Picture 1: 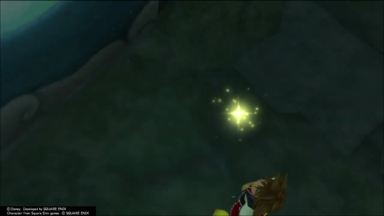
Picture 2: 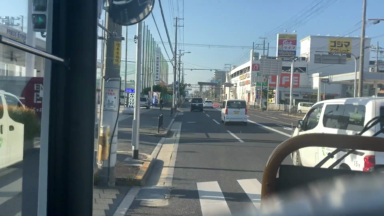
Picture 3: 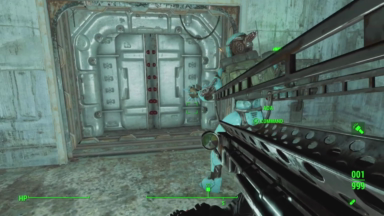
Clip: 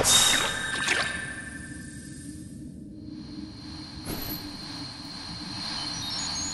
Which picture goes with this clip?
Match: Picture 1